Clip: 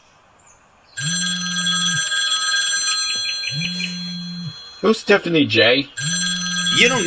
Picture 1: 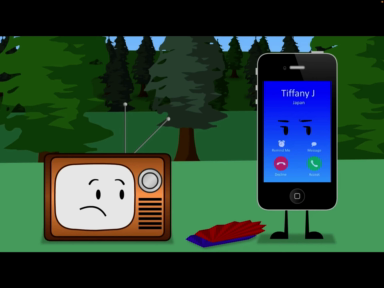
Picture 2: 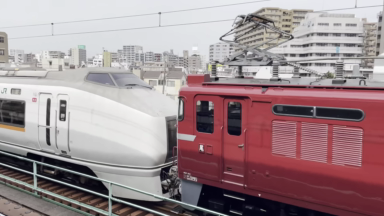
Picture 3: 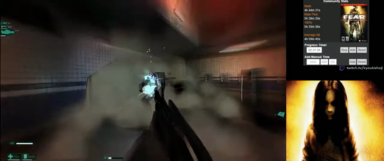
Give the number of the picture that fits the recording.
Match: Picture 1